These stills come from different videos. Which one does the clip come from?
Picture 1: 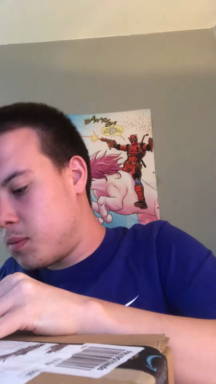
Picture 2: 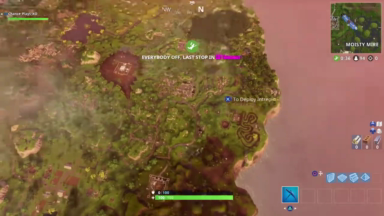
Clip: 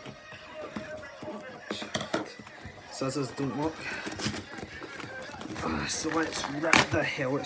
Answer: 1